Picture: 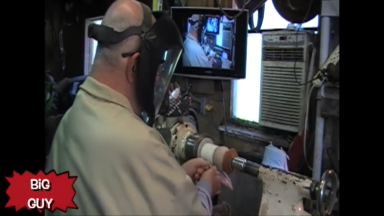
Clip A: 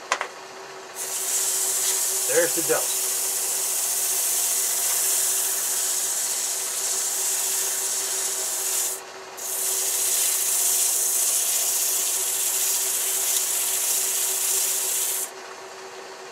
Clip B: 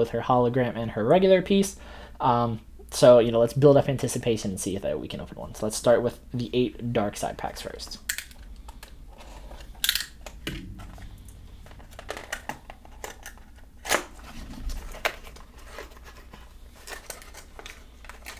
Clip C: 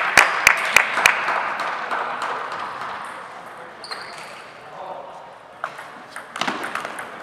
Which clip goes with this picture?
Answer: A